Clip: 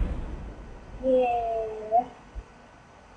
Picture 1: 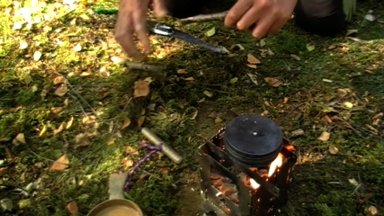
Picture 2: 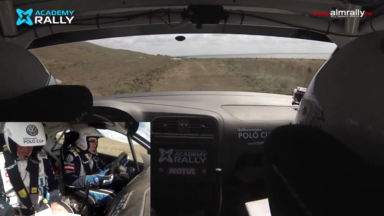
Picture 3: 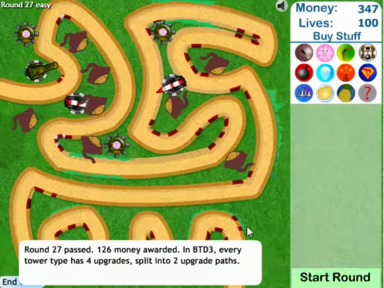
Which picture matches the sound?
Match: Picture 3